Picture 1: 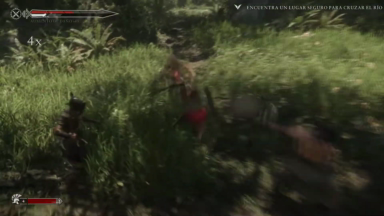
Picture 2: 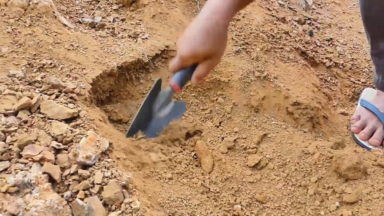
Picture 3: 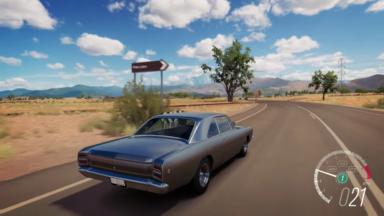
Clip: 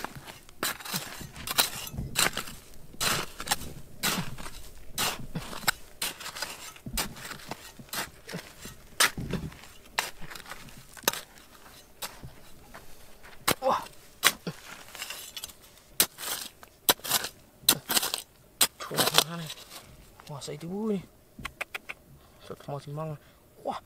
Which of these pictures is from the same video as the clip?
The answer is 2